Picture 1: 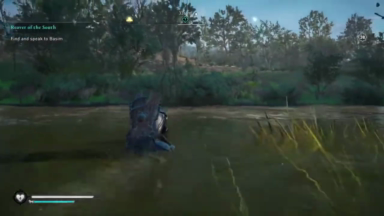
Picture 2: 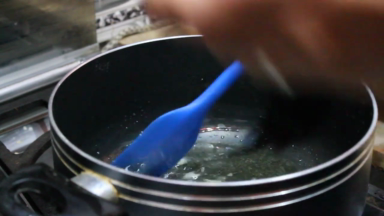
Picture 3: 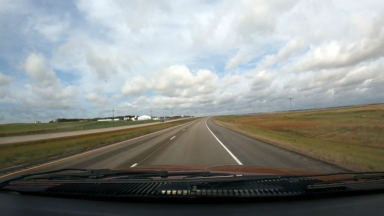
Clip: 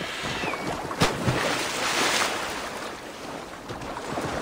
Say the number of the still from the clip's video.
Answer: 1